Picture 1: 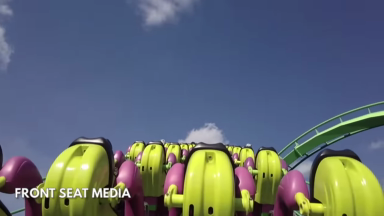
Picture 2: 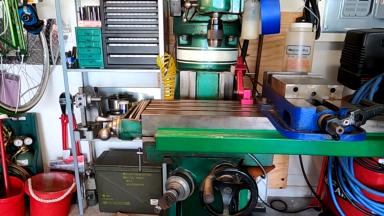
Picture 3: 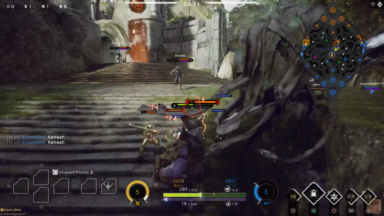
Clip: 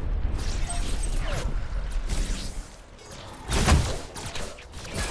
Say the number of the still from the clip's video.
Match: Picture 3